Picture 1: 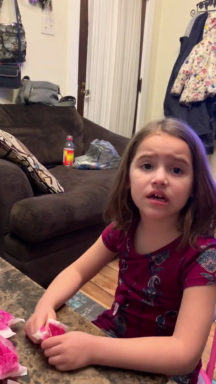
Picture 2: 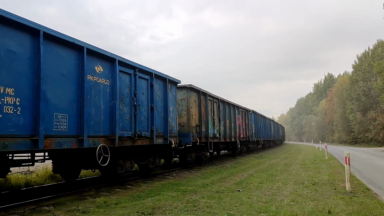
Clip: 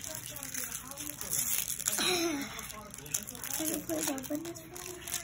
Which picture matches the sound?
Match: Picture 1